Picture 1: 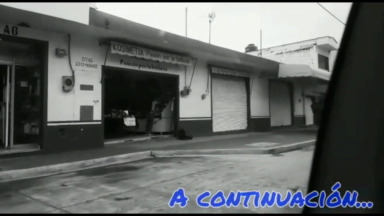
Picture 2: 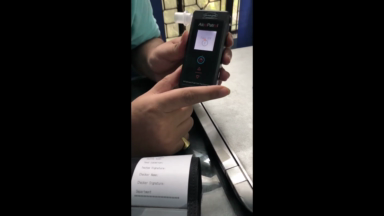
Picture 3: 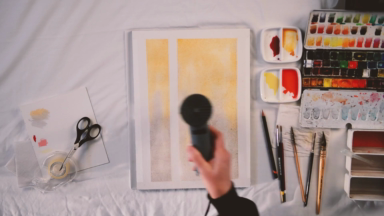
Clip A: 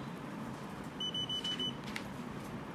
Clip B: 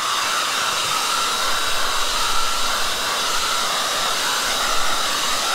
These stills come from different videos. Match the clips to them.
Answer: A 2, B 3